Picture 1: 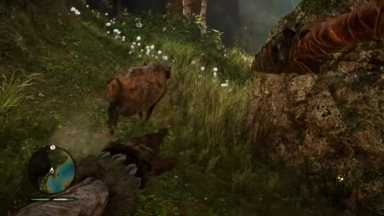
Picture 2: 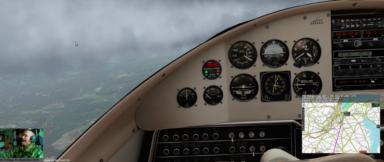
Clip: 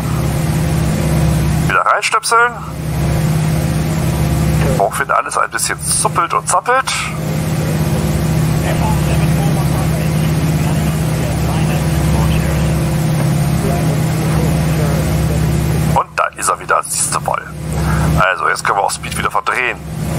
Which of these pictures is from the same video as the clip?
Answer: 2